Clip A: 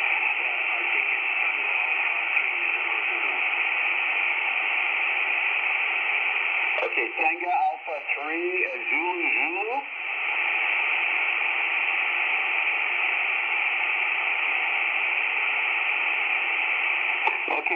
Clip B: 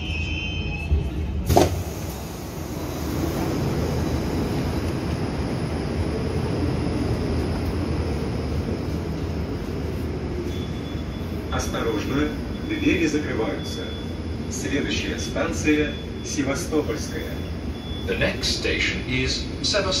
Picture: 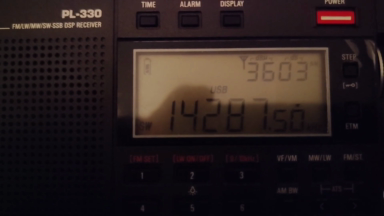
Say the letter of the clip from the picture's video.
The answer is A